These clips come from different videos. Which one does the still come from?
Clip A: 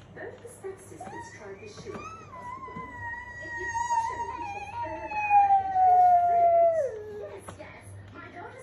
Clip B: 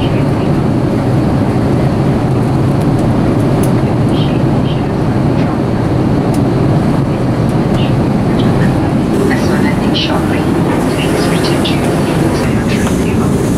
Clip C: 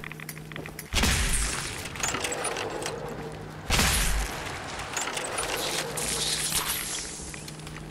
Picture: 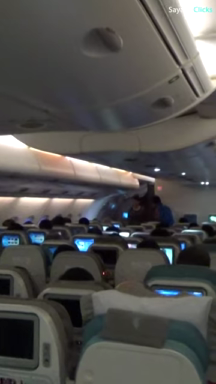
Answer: B